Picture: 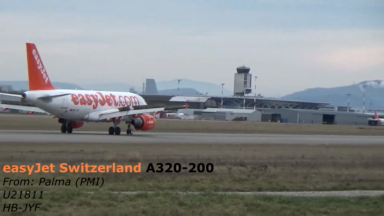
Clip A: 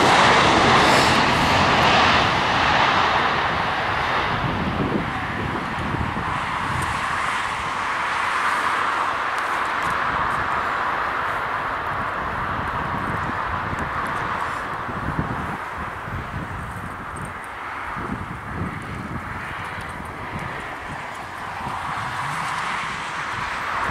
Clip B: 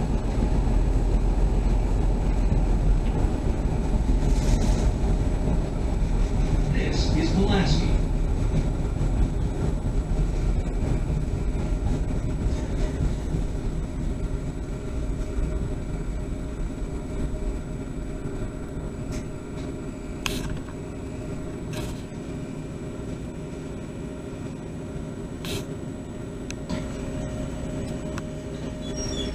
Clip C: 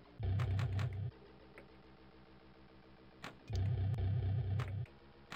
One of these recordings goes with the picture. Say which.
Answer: A